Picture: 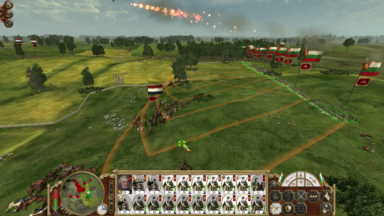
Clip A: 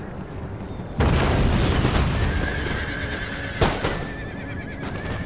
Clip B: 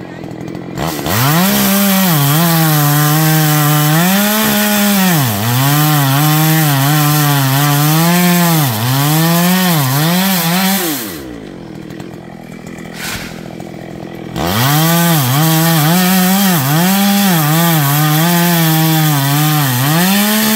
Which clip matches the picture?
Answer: A